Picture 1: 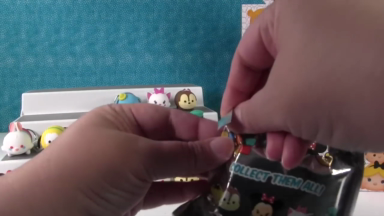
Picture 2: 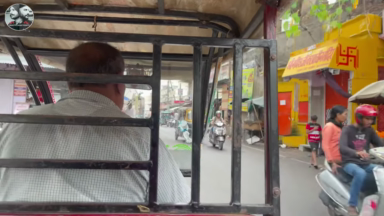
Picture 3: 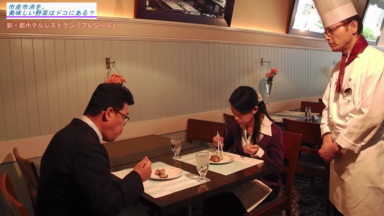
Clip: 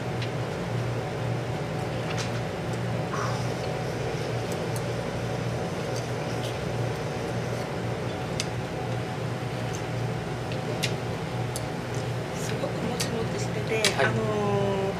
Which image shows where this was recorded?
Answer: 3